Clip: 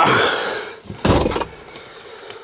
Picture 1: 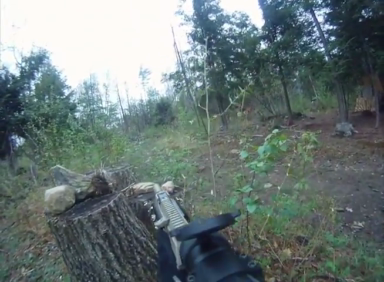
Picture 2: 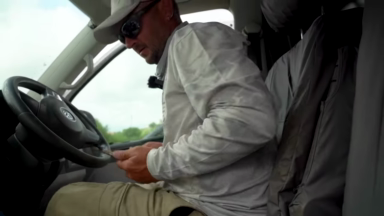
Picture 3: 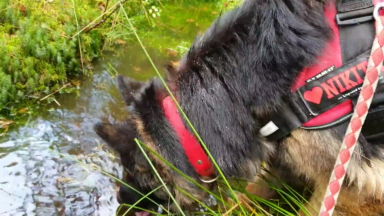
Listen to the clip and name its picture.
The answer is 2